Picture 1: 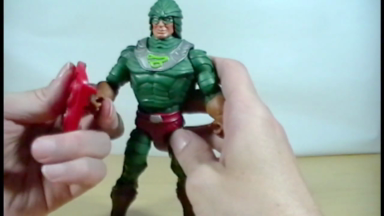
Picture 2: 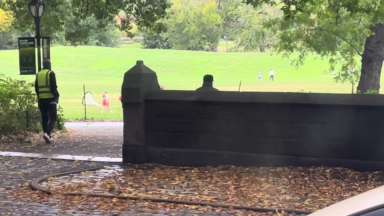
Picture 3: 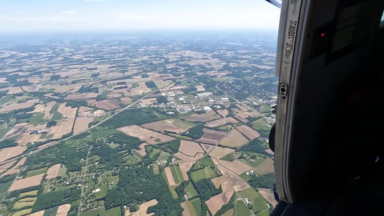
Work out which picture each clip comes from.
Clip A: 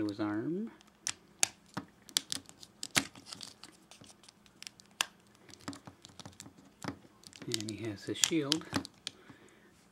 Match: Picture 1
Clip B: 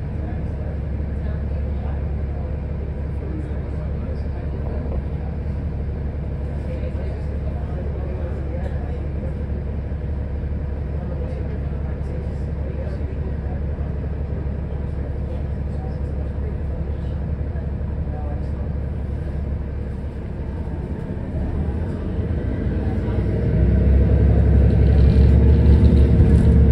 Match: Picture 2